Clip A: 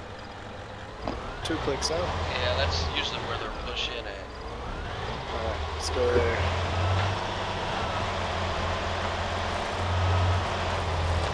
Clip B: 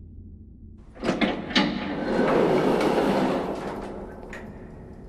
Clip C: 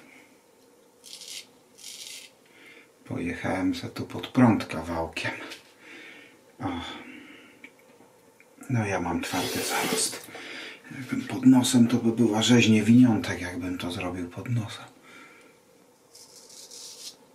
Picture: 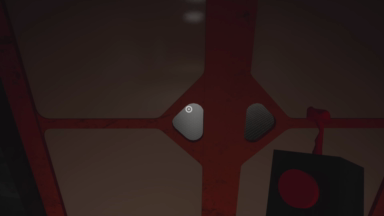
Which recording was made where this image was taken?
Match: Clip B